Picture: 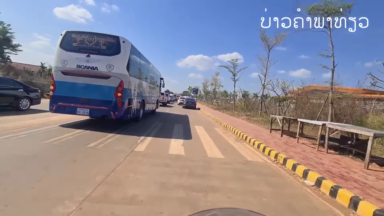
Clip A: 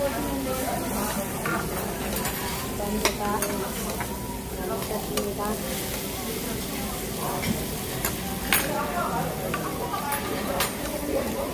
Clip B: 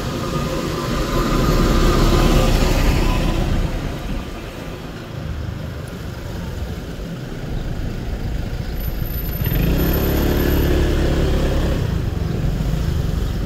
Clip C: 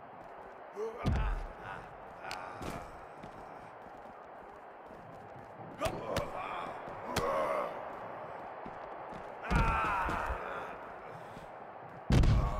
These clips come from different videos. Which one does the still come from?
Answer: B